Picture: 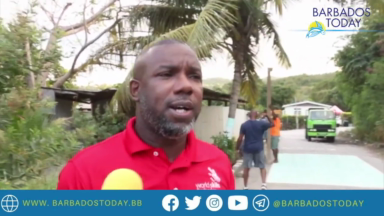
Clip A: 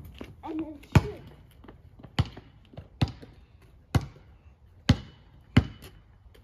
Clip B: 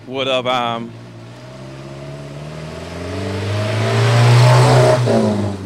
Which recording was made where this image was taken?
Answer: B